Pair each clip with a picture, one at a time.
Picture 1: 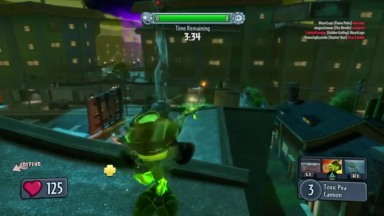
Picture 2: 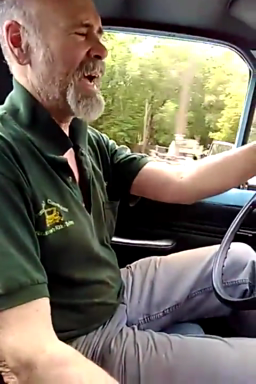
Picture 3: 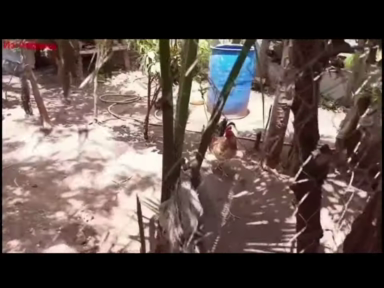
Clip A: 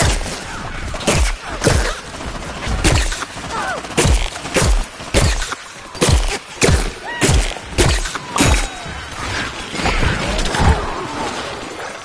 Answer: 1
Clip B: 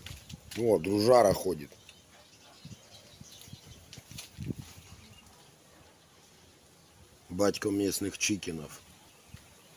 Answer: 3